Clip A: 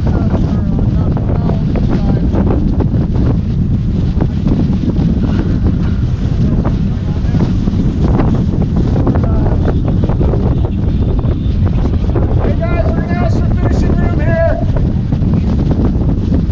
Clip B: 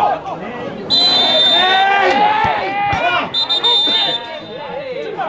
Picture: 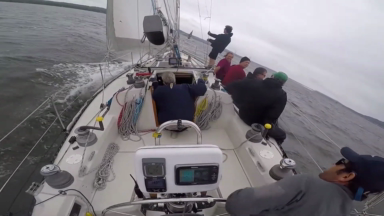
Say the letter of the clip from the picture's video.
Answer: A